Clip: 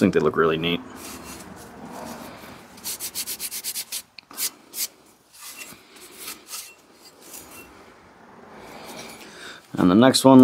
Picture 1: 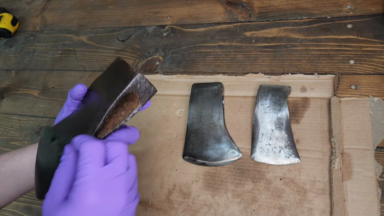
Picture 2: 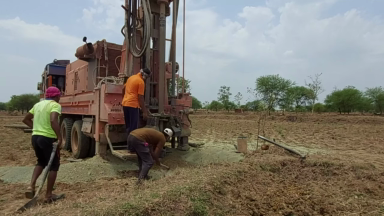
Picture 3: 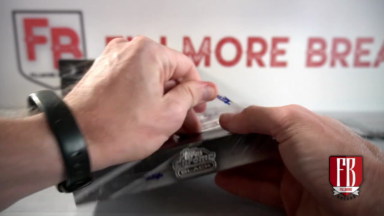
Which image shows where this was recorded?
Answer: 1